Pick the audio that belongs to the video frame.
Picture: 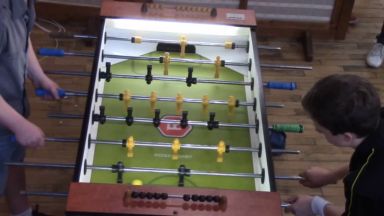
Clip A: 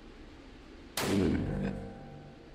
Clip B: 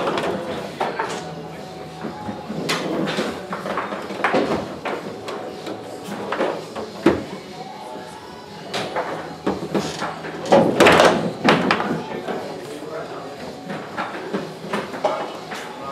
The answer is B